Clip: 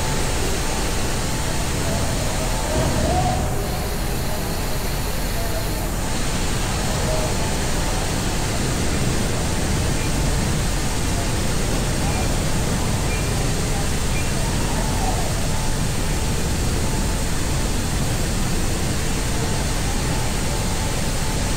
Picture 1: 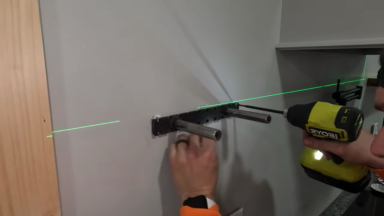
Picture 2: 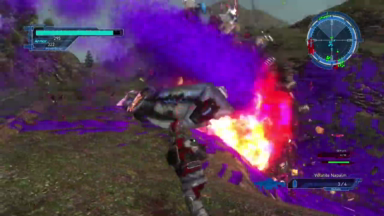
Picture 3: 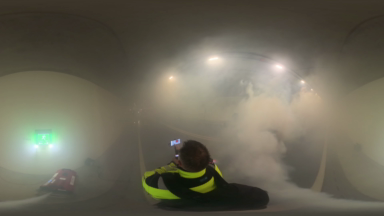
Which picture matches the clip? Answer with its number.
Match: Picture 3